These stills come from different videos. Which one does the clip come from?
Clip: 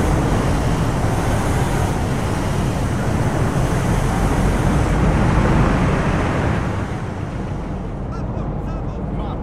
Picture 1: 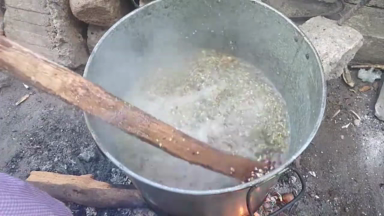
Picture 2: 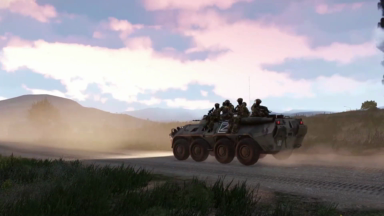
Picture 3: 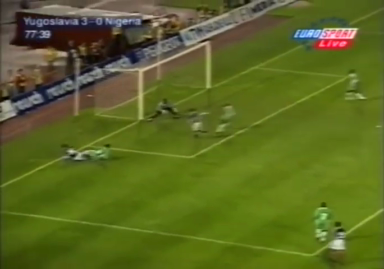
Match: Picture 2